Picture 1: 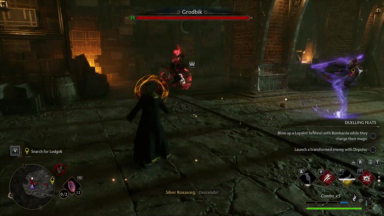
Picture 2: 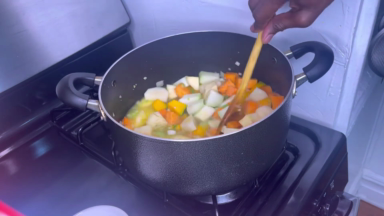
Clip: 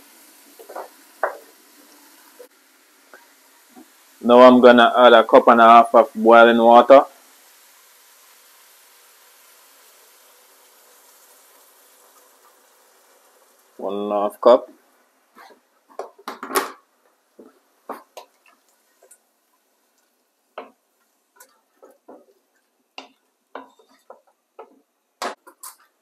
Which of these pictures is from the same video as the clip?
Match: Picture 2